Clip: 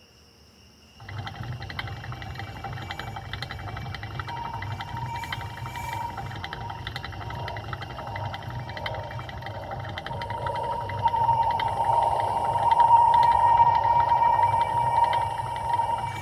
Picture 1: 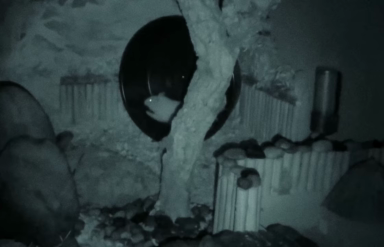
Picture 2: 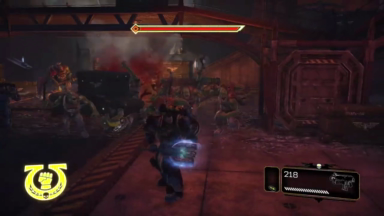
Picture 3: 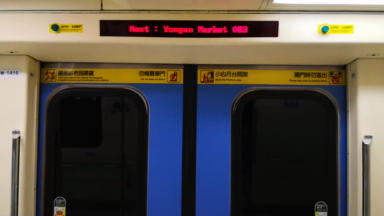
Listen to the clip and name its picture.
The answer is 1